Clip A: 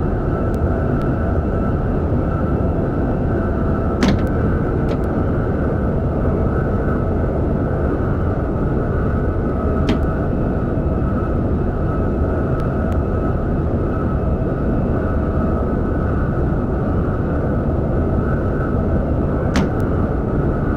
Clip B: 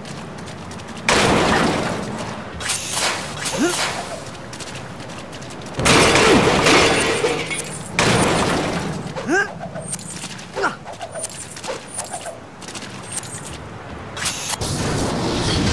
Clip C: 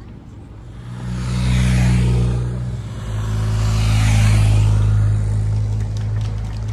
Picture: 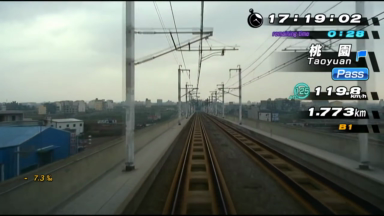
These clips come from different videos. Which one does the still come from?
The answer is A